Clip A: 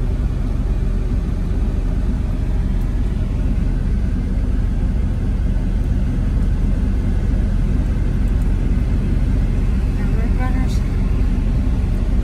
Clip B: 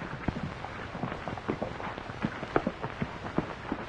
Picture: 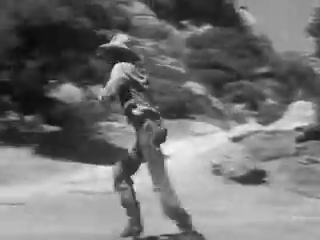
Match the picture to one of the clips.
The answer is B